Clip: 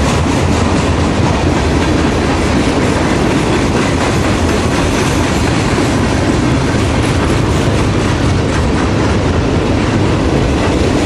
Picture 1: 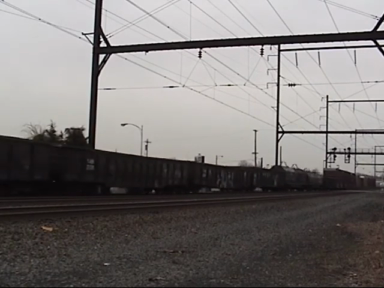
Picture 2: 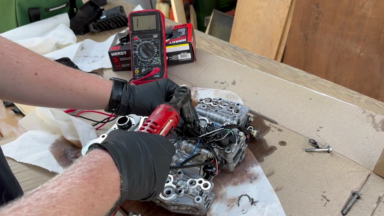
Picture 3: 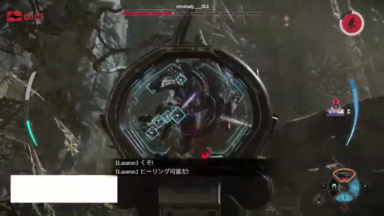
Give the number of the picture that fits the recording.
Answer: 1